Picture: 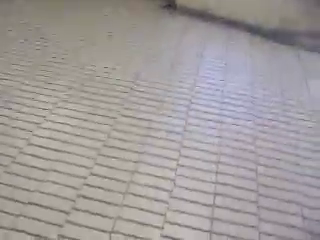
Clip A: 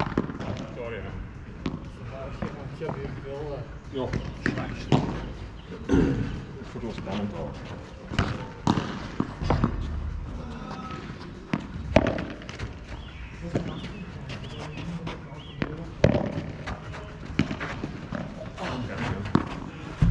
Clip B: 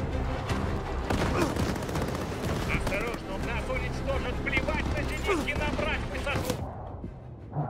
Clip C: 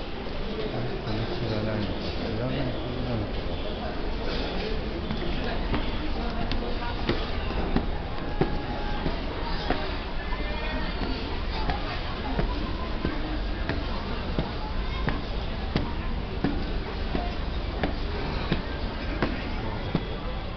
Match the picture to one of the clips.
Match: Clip C